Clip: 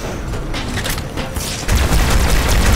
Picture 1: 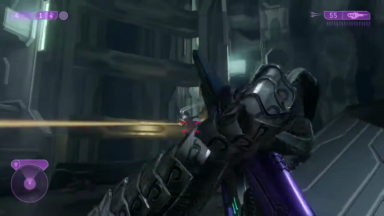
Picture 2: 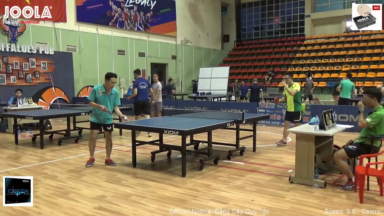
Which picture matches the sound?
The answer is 1